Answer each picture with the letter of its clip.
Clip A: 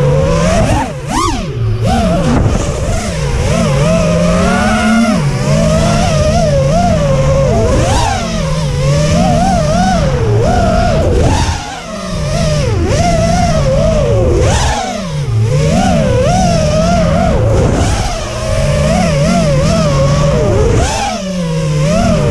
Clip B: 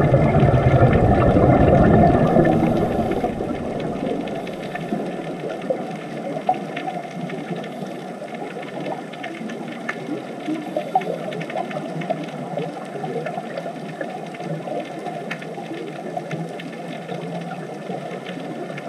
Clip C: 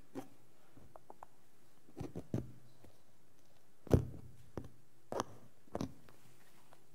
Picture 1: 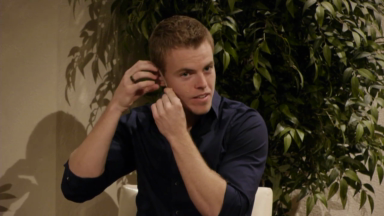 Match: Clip C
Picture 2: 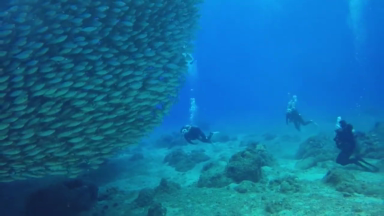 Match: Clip B